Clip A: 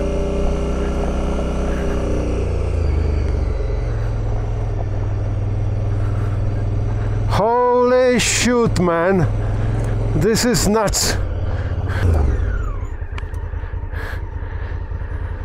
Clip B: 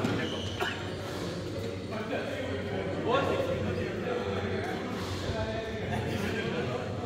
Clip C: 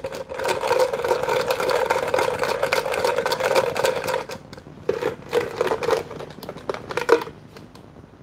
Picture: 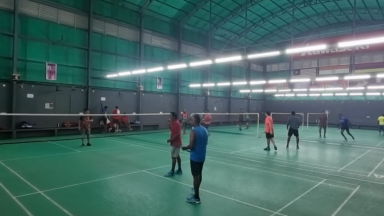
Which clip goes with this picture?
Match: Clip B